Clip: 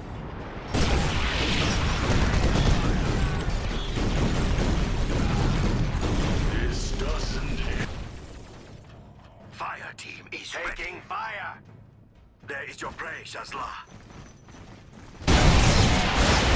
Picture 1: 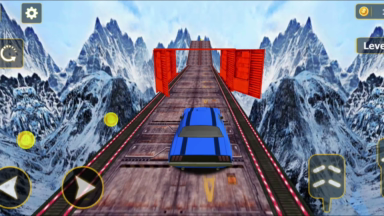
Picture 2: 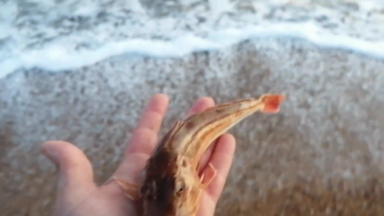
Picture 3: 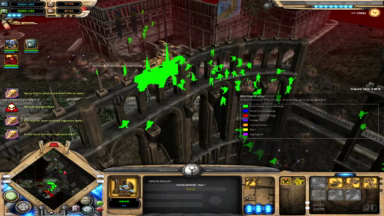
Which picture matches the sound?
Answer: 3